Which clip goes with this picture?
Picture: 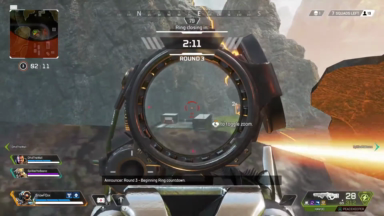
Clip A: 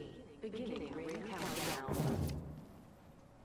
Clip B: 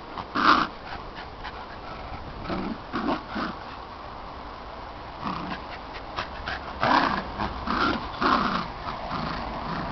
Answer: A